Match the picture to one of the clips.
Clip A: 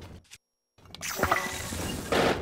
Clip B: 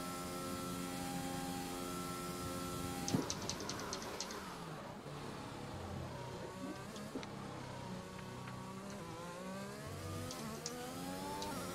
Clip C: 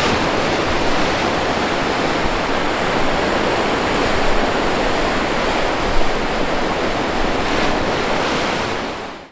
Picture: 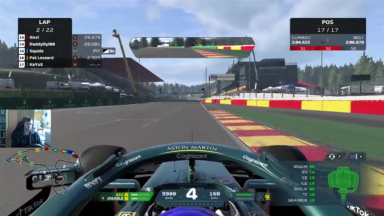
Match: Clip B